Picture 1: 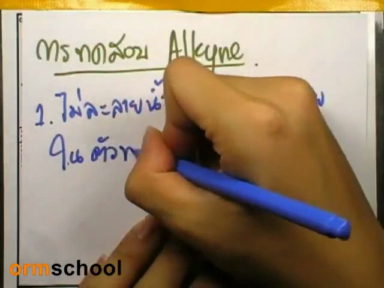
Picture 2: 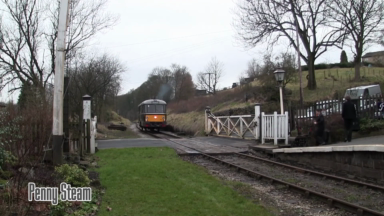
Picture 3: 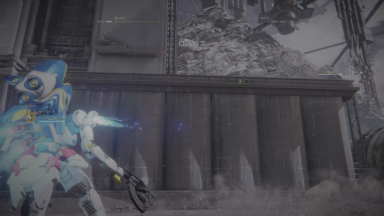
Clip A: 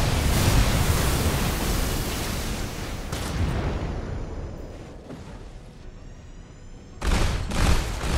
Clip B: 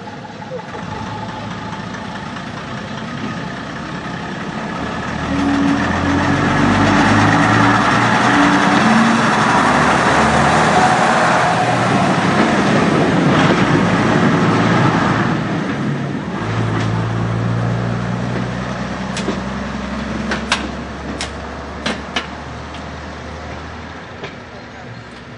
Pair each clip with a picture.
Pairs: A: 3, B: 2